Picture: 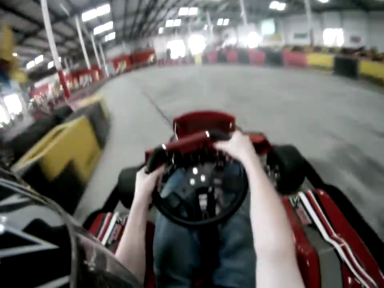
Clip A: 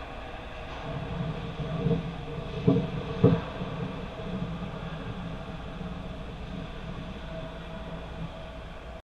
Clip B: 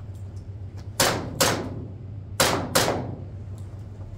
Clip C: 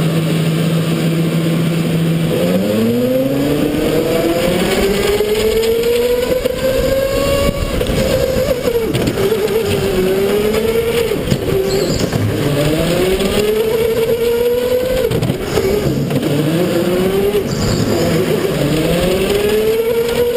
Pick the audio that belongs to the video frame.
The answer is C